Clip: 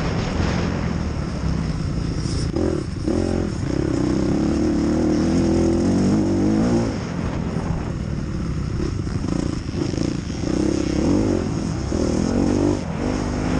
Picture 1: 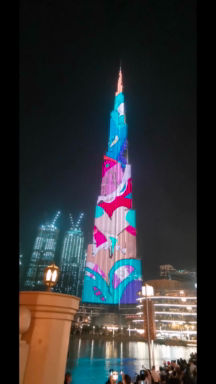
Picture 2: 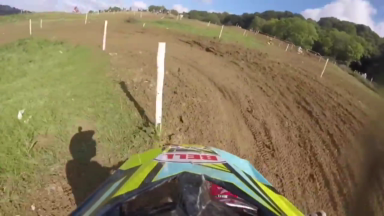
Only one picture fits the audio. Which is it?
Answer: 2